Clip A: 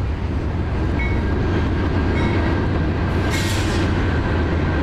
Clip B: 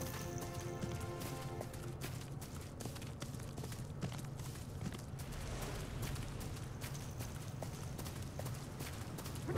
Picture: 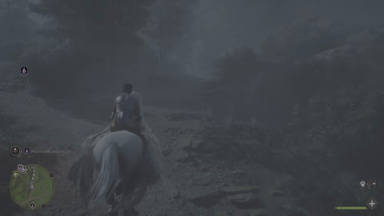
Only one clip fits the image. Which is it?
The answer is B